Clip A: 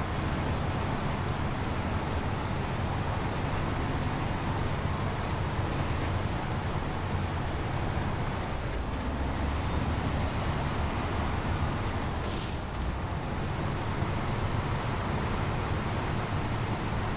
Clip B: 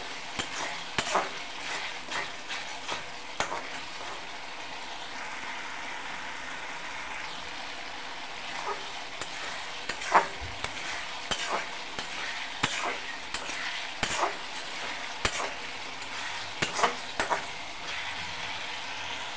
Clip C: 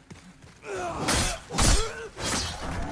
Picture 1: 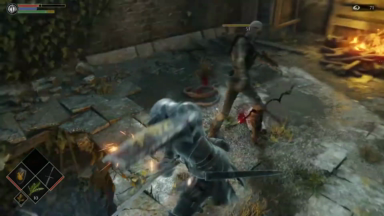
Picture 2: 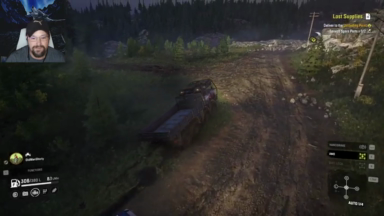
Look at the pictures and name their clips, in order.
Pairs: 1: C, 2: A